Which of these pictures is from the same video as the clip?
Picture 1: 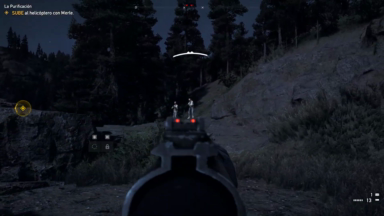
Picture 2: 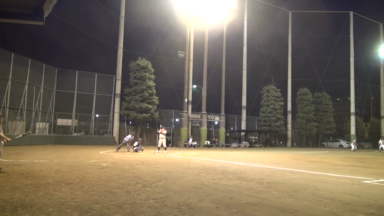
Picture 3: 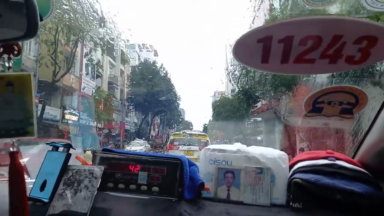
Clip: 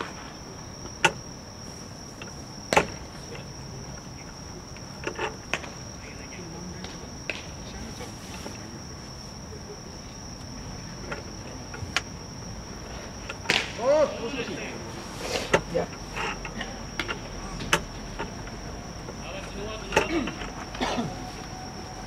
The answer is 2